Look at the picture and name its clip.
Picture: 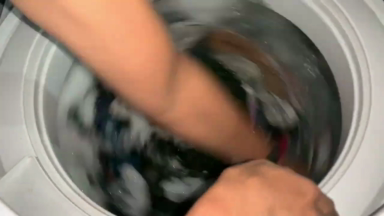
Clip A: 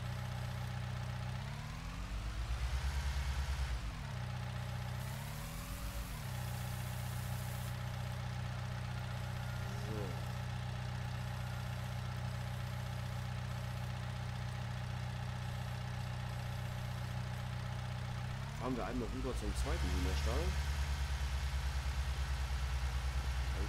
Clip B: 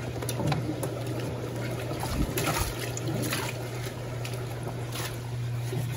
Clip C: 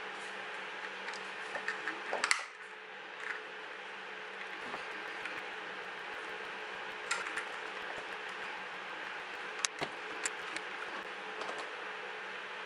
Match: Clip B